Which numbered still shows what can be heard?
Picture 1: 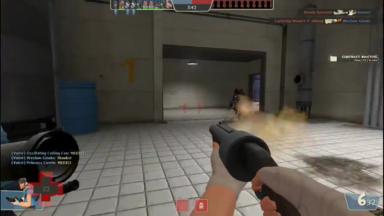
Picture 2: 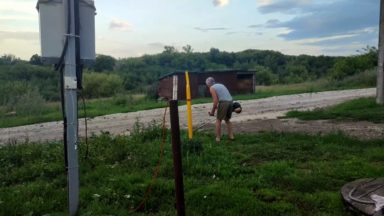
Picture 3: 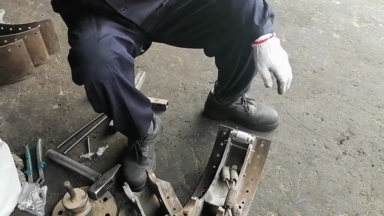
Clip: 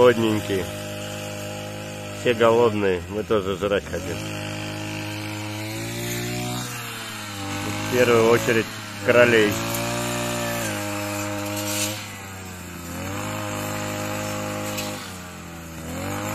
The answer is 2